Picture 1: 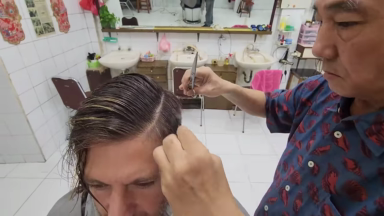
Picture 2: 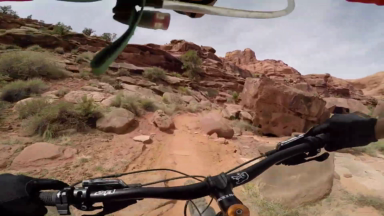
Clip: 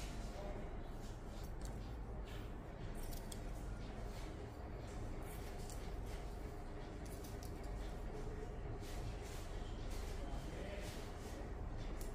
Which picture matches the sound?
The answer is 1